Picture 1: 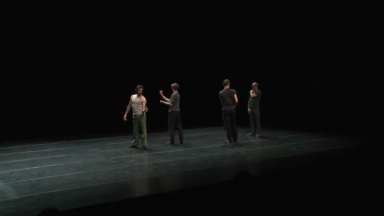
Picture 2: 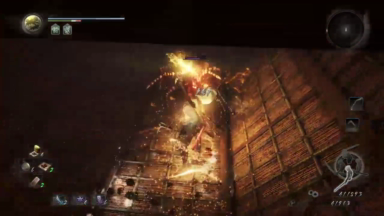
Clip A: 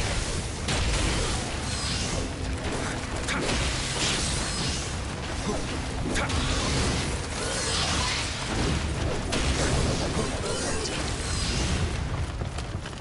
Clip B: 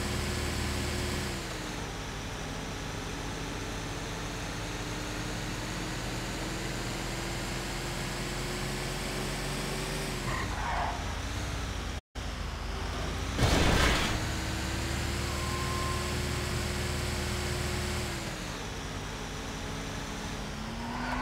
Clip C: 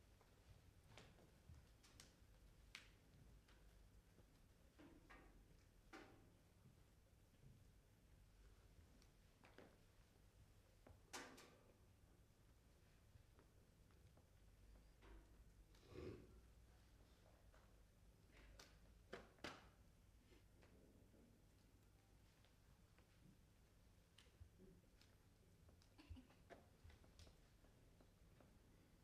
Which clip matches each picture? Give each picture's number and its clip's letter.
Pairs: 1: C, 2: A